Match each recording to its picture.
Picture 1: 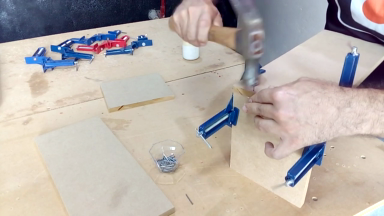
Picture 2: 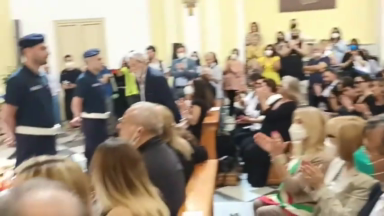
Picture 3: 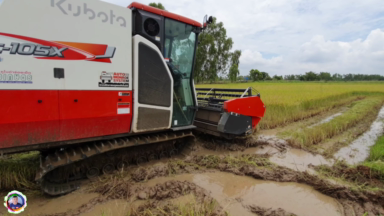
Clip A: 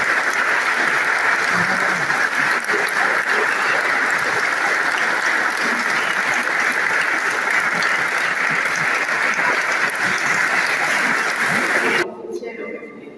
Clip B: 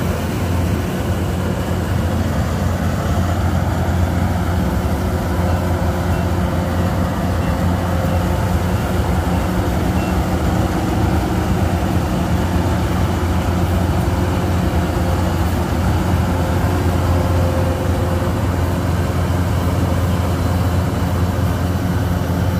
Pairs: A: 2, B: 3